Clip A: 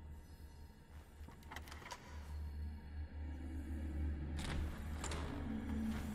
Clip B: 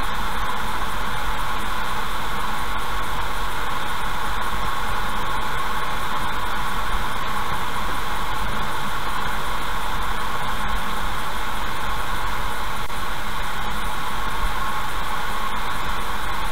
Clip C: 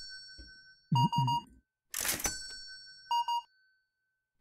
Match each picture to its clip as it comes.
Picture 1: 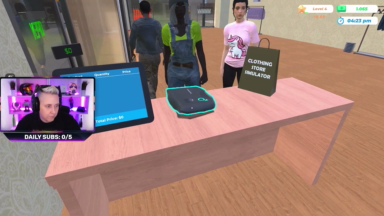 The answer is C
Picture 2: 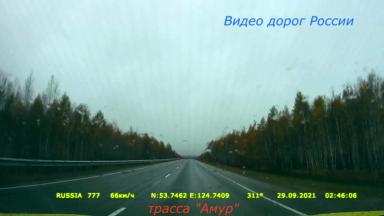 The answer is B